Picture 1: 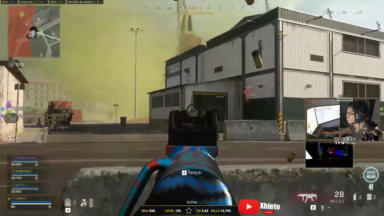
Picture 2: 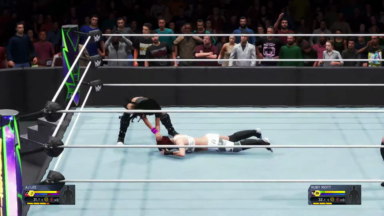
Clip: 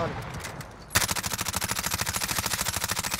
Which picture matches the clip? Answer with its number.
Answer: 1